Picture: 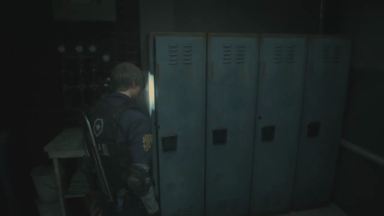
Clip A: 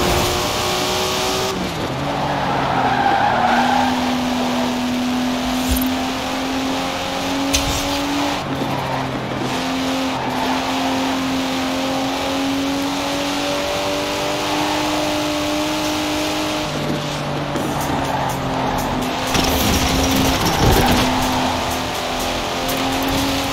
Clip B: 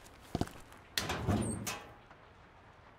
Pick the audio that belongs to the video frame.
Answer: B